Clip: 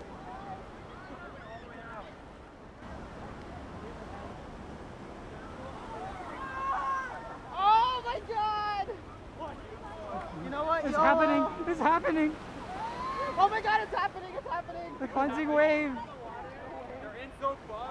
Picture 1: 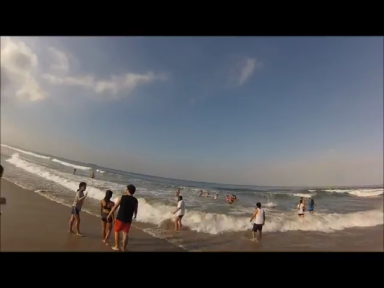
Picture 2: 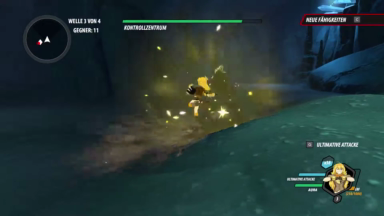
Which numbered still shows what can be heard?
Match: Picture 1